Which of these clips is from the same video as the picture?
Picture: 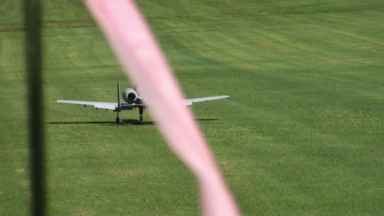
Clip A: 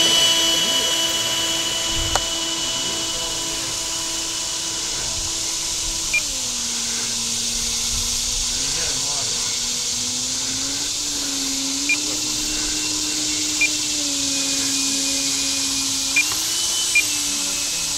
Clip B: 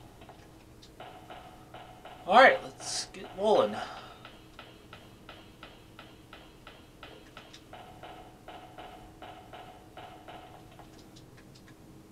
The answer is A